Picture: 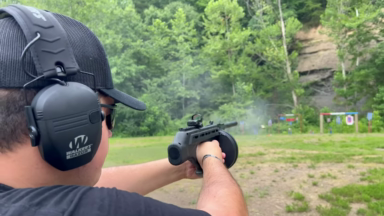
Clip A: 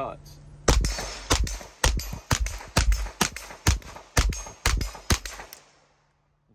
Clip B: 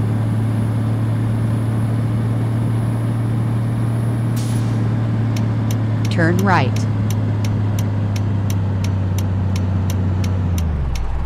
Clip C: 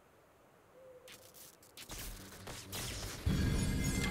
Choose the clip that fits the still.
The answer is A